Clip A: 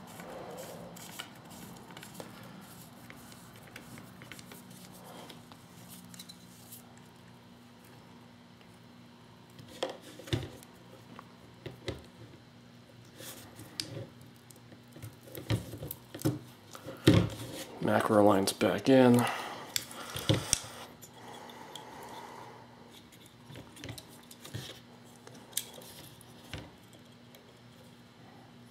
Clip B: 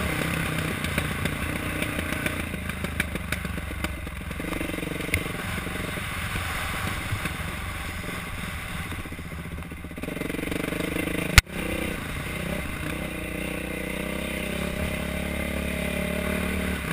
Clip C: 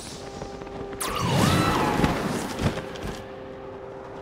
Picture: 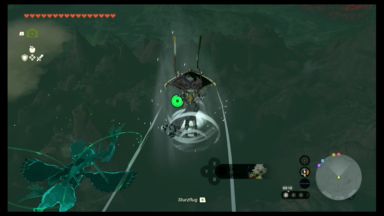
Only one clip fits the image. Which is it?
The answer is C